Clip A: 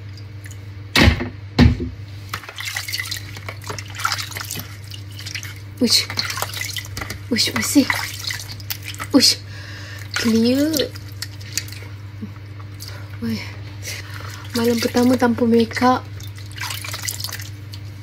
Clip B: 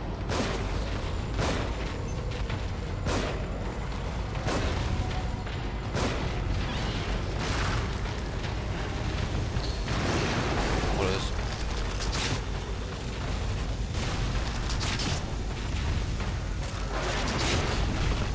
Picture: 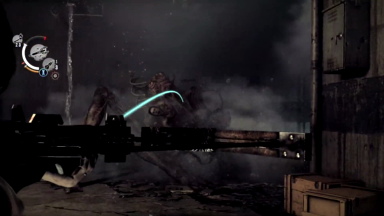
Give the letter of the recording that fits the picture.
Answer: B